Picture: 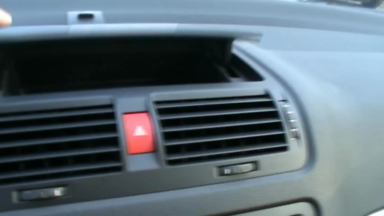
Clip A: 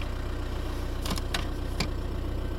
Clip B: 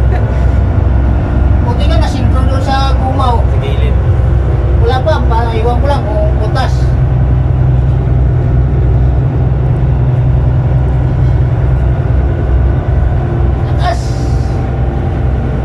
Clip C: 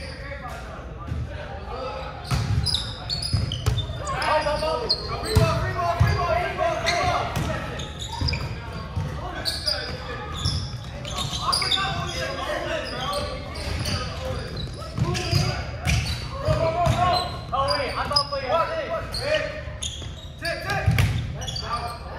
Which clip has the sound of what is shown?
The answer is A